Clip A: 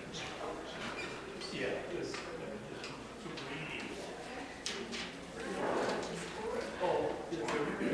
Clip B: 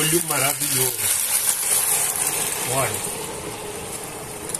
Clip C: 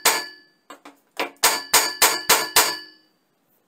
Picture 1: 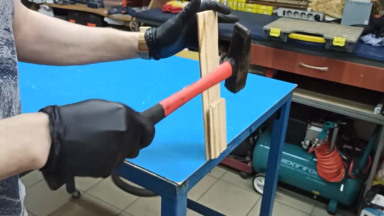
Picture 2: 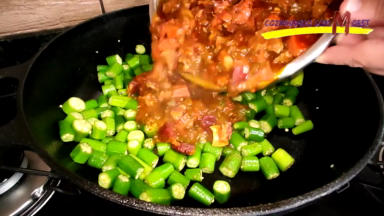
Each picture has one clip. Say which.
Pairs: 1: C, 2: B